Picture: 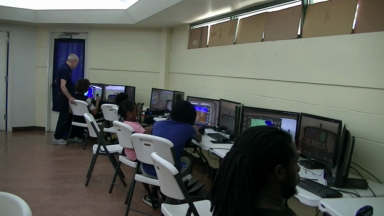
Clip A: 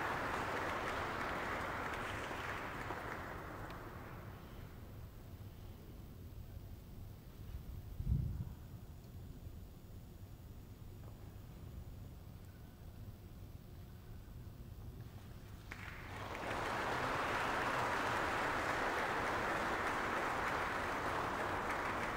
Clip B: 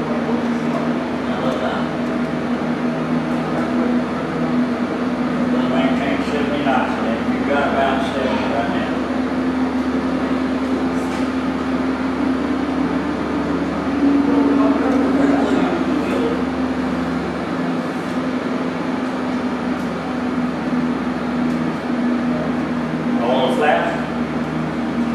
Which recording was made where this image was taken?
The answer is B